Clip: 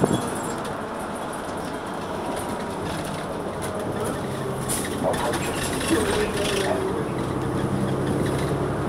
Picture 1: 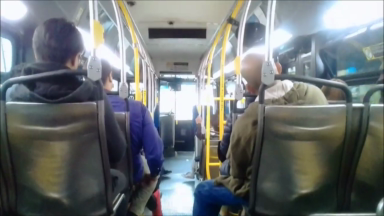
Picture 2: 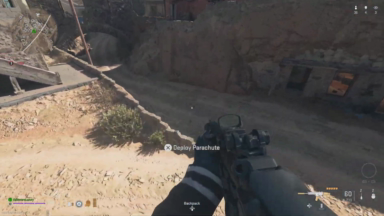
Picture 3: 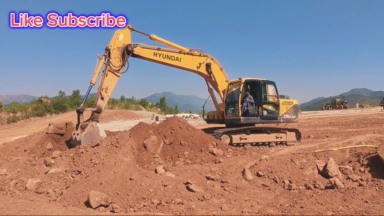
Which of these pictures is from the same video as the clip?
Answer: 1